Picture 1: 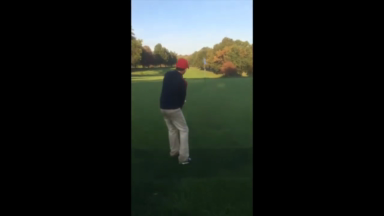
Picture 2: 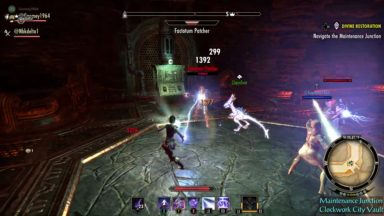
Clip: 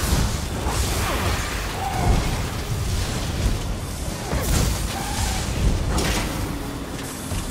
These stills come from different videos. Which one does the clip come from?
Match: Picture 2